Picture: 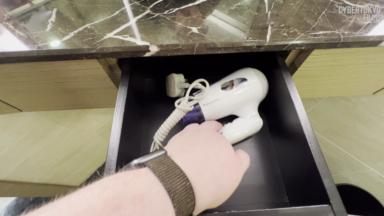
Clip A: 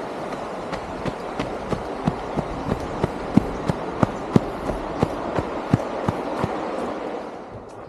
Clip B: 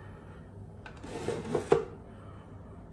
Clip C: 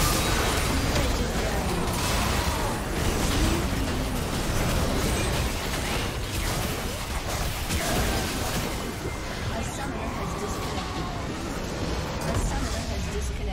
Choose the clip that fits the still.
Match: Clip B